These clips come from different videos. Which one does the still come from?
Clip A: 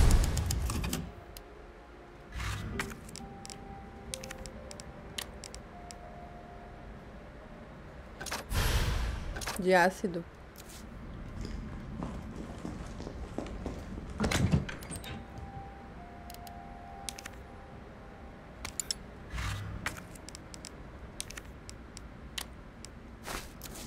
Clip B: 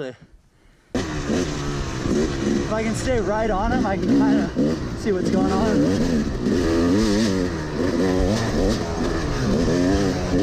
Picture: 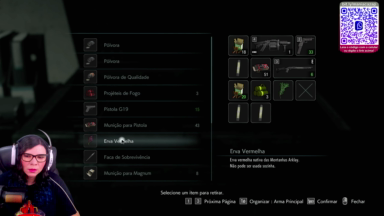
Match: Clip A